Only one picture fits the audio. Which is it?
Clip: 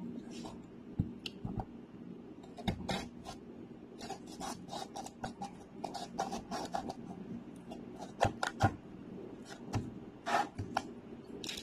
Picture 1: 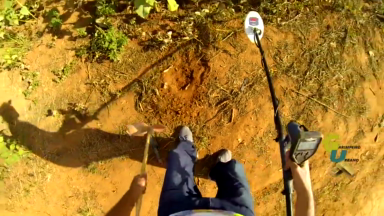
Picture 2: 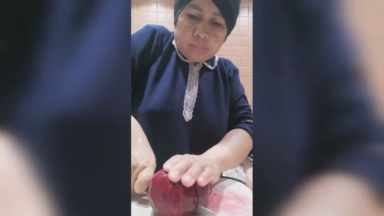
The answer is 2